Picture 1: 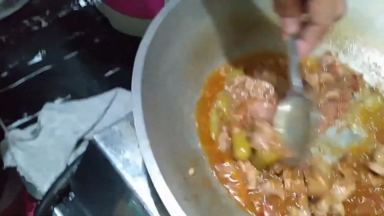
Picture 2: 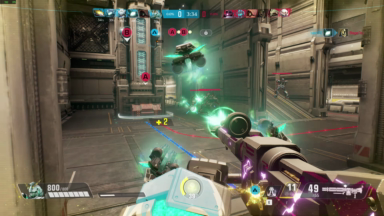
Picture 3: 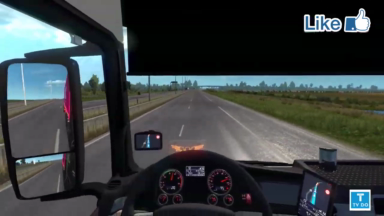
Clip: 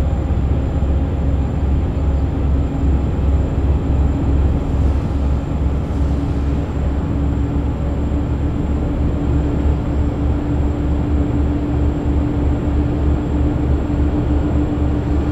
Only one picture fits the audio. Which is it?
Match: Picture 3